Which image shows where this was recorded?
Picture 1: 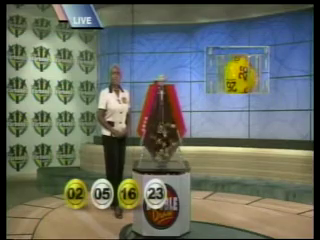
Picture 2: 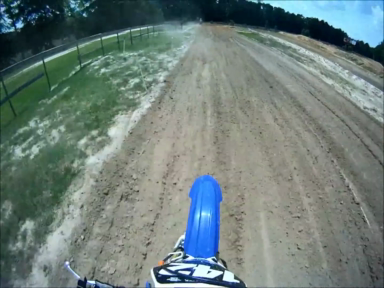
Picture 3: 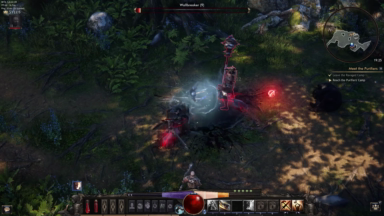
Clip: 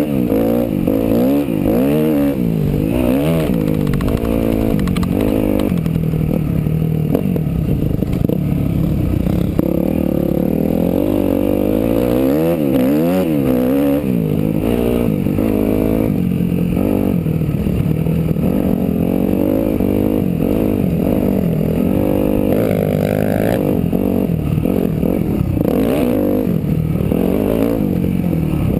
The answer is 2